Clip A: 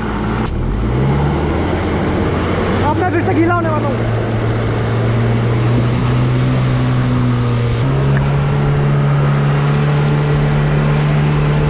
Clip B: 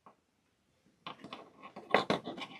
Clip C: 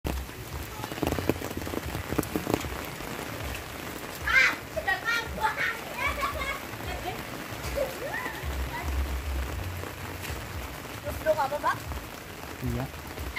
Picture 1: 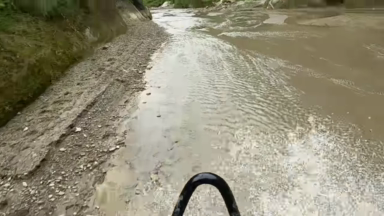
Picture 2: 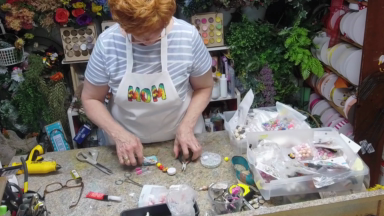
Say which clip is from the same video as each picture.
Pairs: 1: A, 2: B